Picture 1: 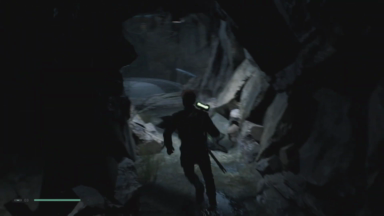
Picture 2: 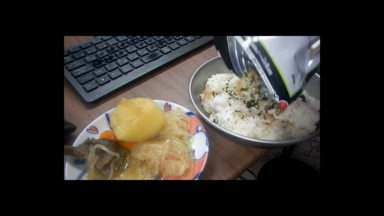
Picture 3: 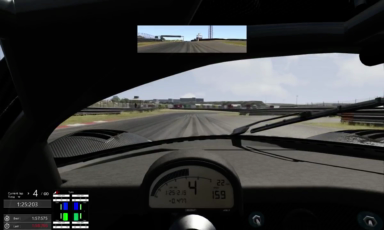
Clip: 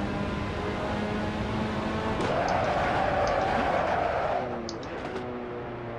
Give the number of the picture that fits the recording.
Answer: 3